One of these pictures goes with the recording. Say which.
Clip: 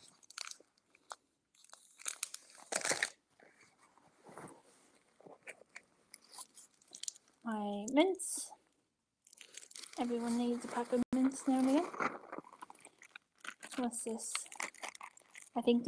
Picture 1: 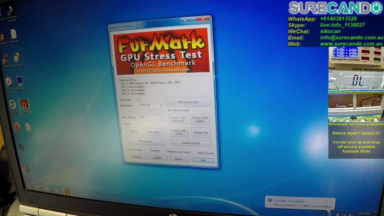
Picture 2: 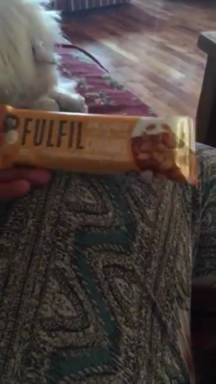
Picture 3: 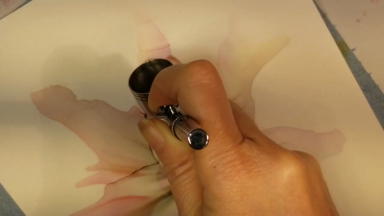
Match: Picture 2